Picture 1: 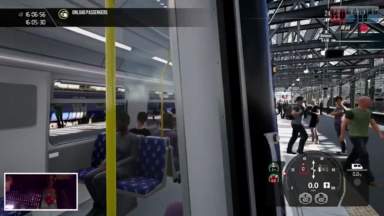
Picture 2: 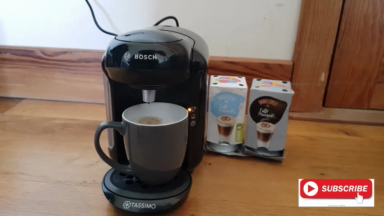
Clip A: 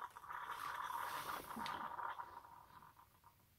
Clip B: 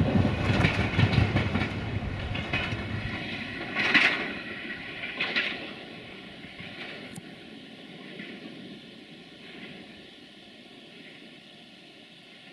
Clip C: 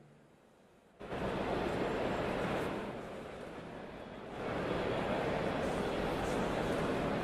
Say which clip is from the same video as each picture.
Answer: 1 C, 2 A